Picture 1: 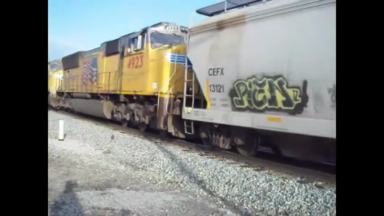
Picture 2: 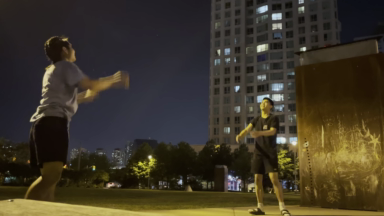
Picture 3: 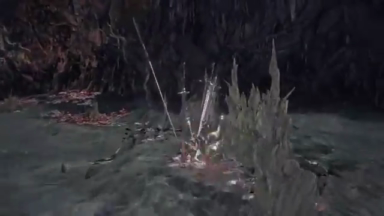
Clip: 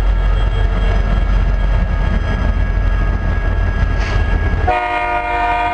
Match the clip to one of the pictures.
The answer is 1